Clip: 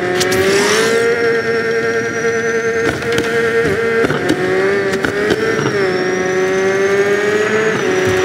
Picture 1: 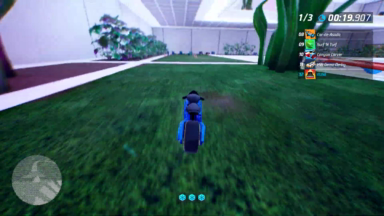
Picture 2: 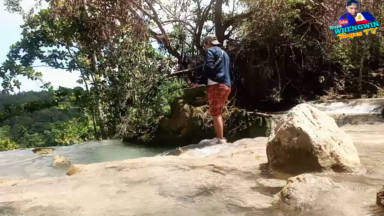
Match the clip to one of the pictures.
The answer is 1